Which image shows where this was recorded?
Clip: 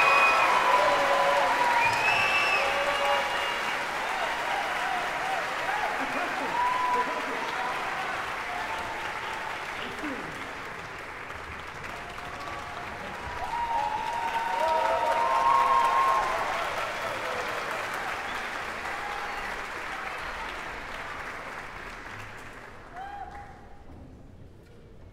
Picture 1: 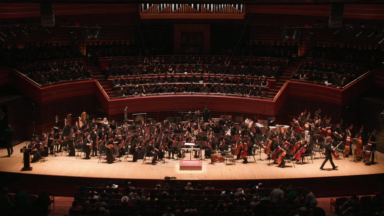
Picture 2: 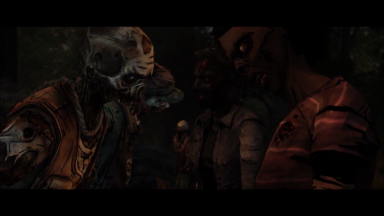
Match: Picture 1